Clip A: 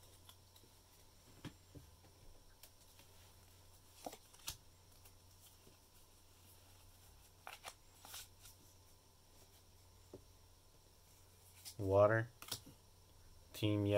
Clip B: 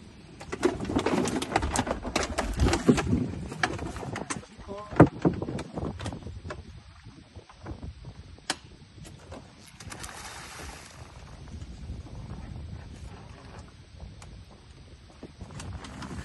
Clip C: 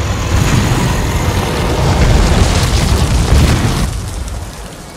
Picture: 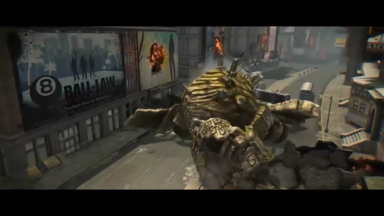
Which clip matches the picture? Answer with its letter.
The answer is C